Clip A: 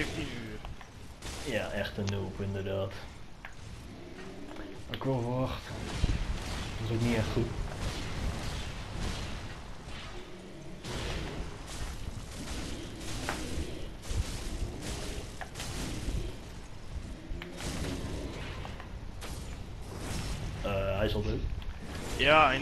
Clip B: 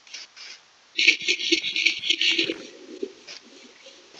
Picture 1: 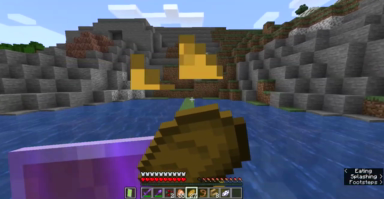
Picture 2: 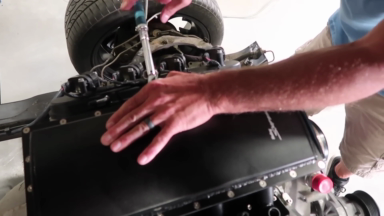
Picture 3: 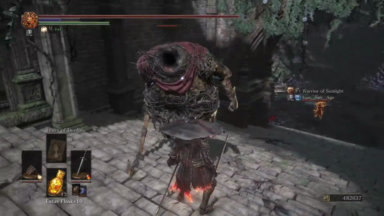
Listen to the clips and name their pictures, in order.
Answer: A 3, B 1